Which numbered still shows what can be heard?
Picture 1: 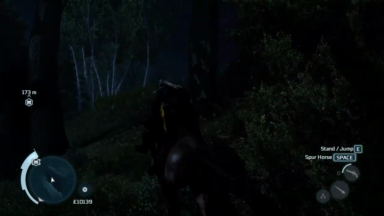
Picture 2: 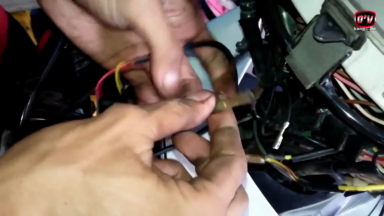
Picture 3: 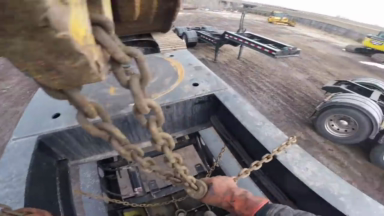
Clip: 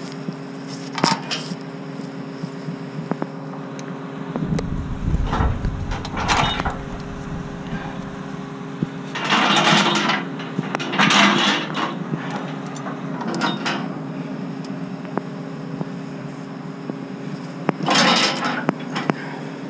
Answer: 3